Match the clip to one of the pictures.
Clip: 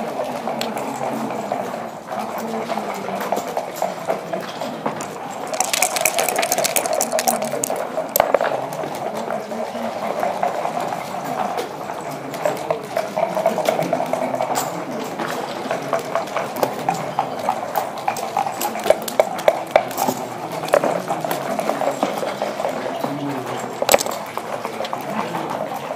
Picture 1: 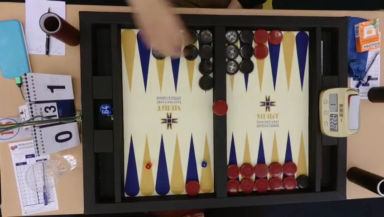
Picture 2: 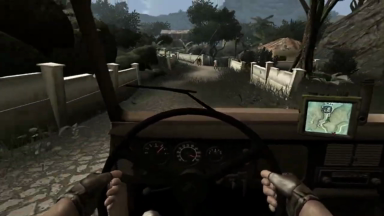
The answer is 1